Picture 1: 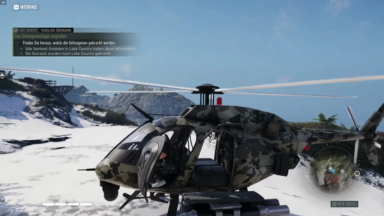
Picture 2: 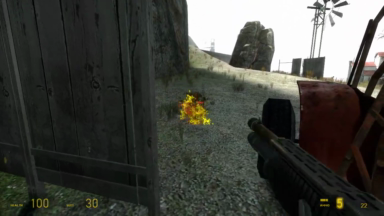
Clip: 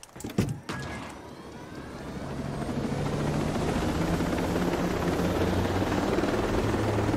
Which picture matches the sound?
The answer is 1